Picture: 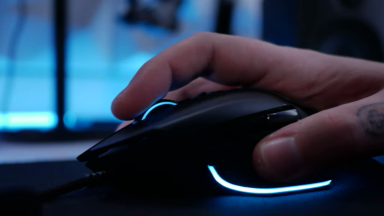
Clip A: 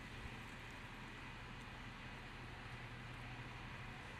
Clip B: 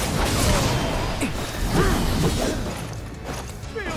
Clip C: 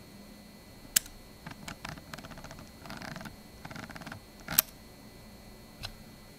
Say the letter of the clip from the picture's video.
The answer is C